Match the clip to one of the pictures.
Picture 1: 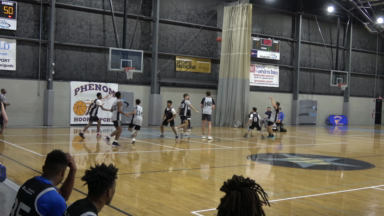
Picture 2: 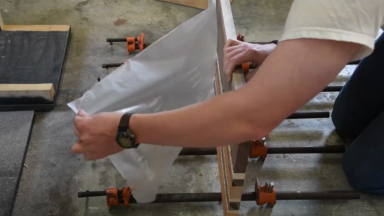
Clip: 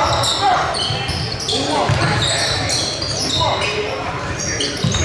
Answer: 1